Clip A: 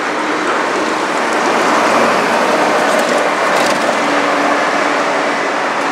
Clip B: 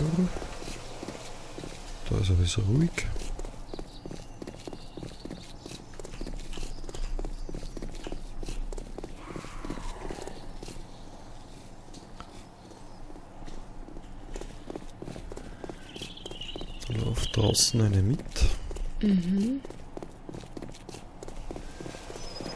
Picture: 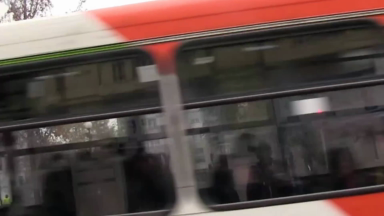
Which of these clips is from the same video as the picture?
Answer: A